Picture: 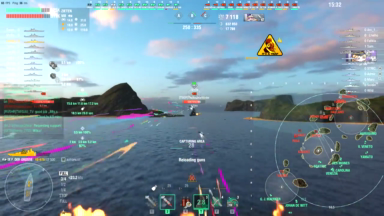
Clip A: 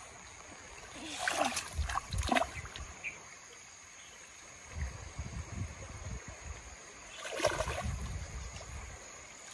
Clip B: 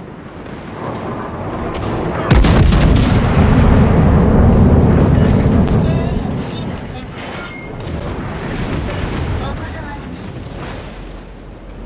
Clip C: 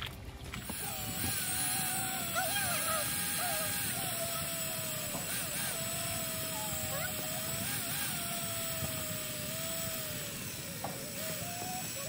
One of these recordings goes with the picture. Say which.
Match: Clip B